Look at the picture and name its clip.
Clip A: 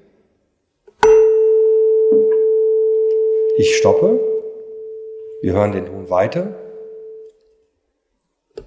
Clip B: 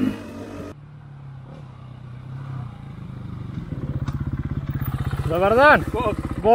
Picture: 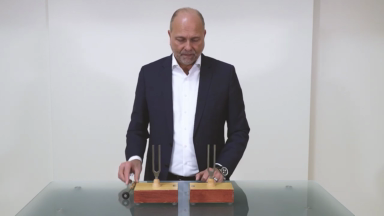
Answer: A